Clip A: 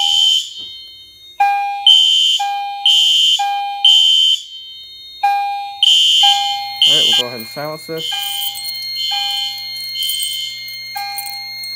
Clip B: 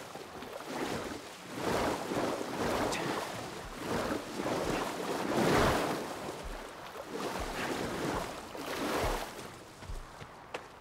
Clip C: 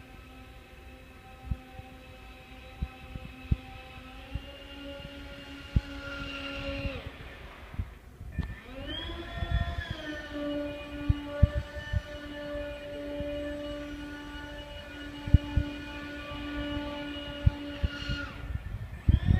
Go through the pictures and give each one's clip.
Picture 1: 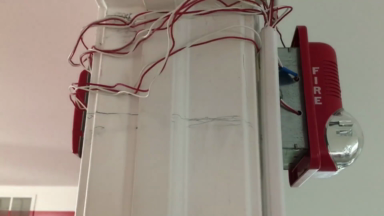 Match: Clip A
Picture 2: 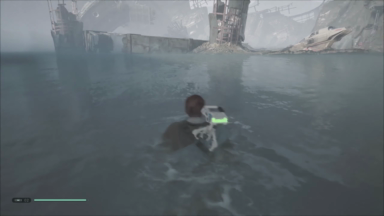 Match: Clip B